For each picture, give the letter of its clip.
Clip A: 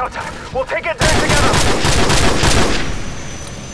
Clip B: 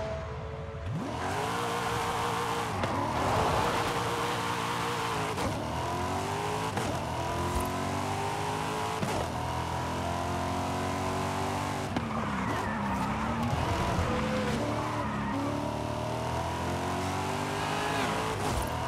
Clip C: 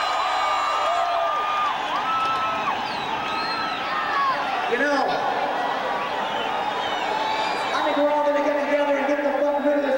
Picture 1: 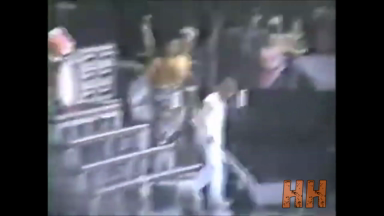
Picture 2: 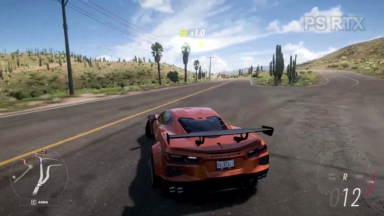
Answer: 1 C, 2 B